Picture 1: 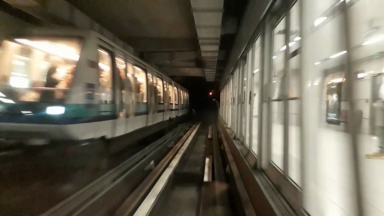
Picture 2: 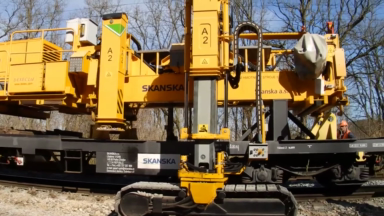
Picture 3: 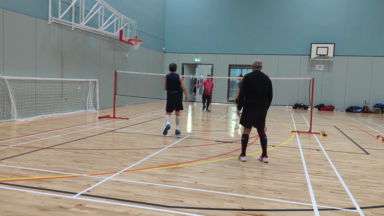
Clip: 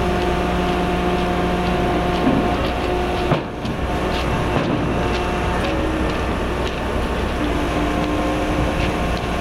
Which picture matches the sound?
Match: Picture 2